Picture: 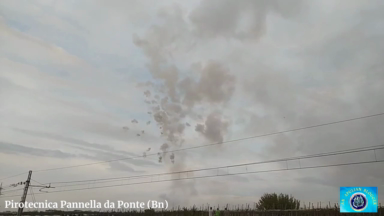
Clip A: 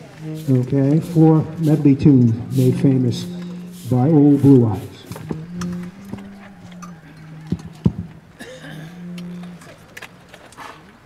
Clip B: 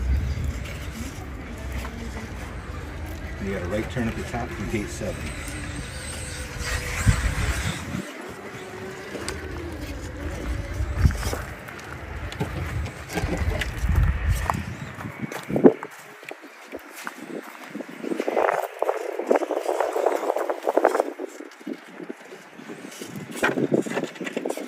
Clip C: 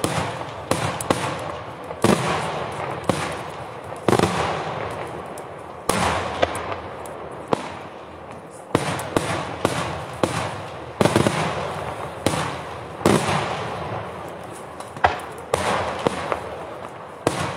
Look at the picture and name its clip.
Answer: C